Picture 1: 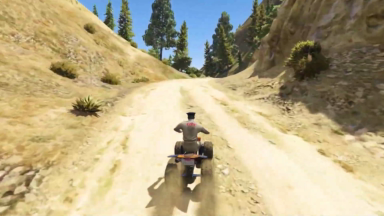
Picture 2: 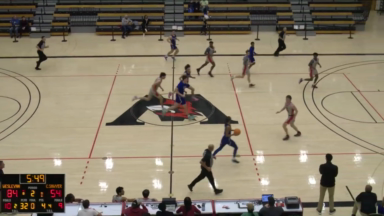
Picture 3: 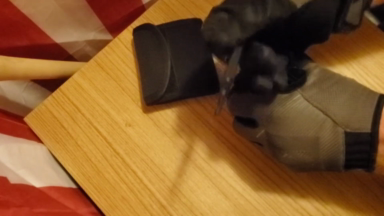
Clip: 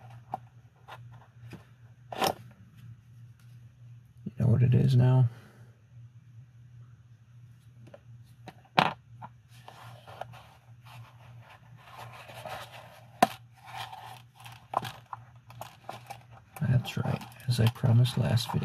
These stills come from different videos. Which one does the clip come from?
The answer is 3